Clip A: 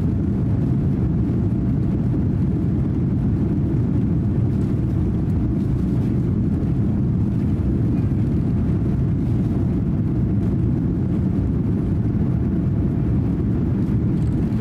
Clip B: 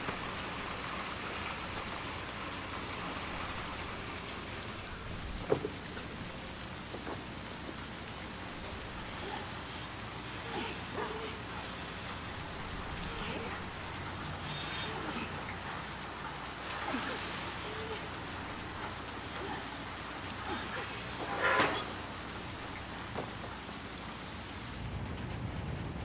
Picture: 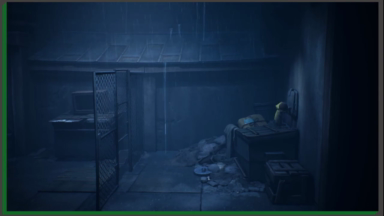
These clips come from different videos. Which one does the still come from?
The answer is B